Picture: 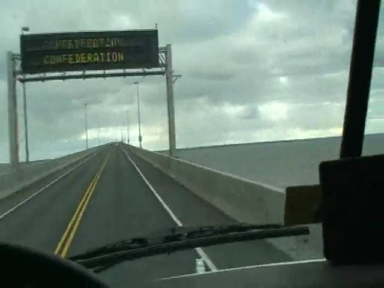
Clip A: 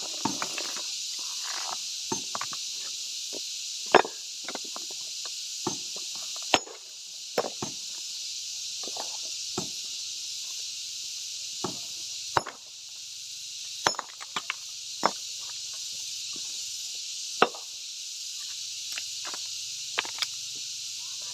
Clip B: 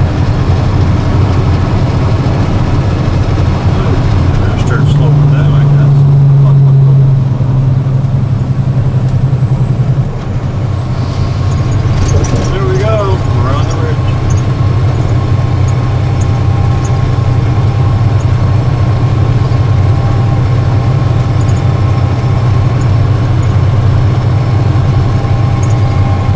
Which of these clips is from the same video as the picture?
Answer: B